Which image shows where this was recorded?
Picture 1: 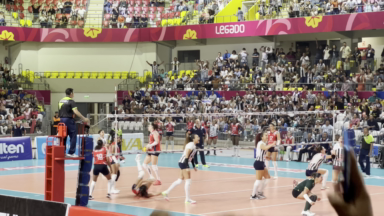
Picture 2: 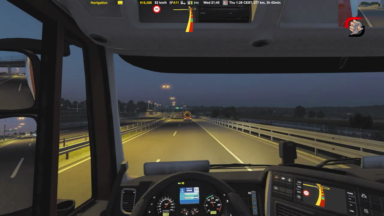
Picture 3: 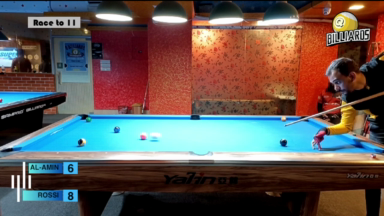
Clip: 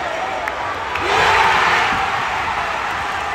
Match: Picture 1